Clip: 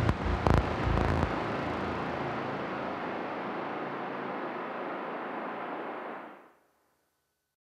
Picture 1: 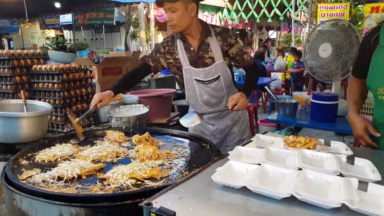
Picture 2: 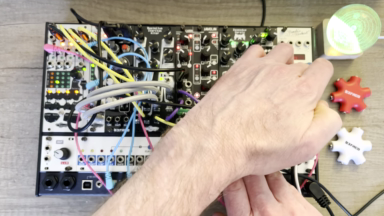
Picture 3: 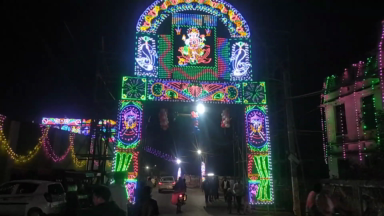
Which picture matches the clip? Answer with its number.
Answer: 2